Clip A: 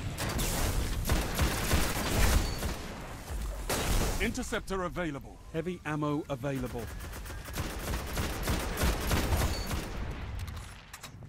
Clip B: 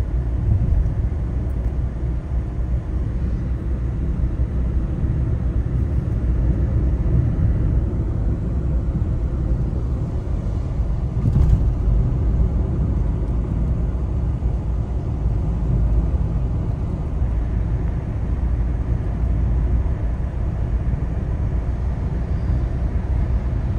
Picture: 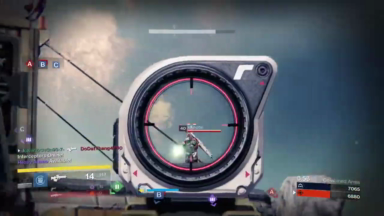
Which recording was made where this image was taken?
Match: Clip A